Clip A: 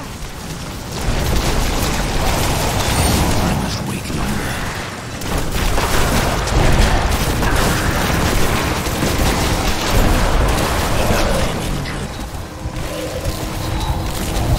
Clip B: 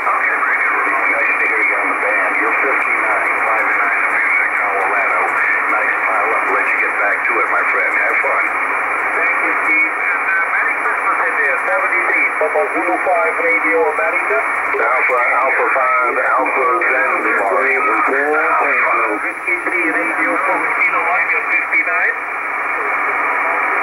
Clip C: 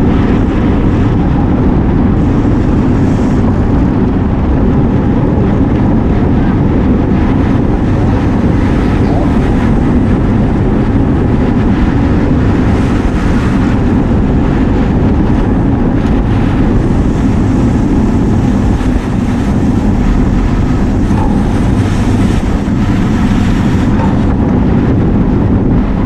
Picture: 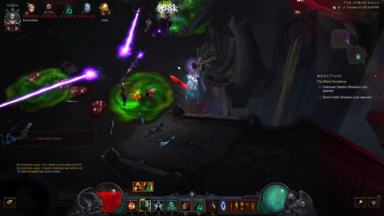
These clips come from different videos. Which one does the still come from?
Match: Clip A